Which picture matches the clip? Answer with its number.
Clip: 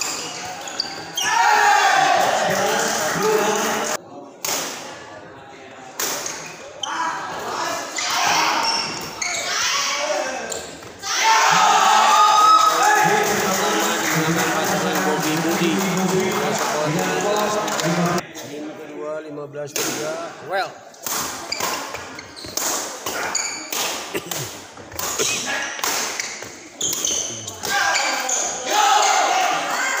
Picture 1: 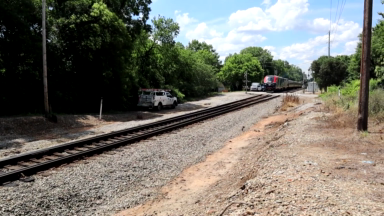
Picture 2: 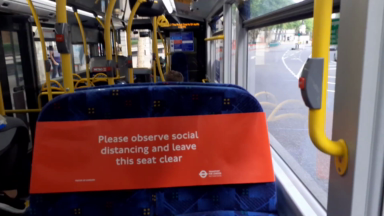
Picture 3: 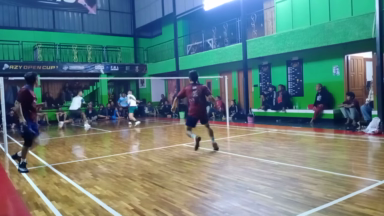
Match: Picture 3